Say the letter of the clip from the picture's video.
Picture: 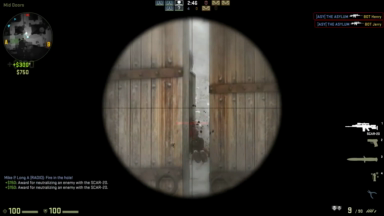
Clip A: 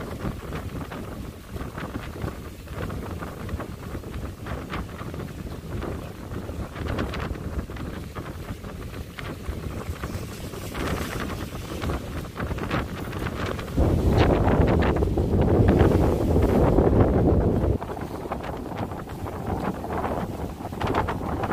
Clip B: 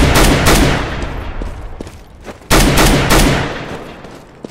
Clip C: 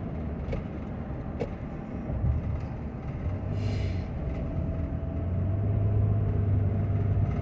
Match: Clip B